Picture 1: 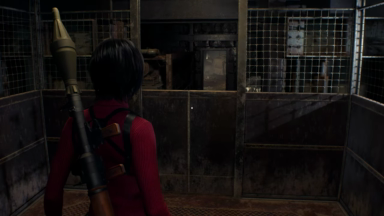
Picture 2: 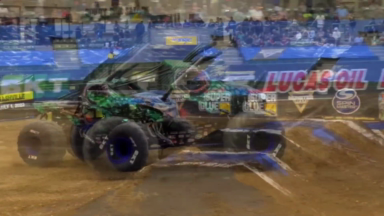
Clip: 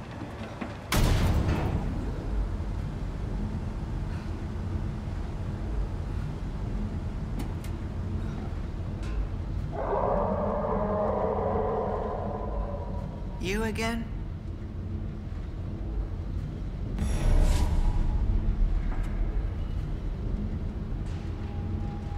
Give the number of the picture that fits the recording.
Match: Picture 1